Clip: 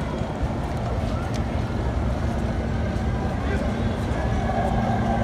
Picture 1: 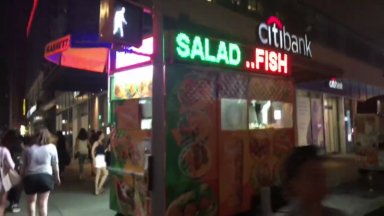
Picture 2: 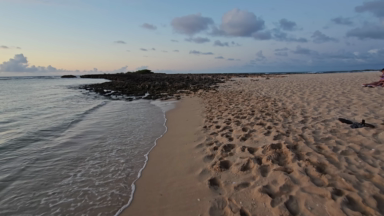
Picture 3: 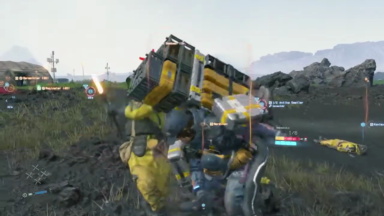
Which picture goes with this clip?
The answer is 1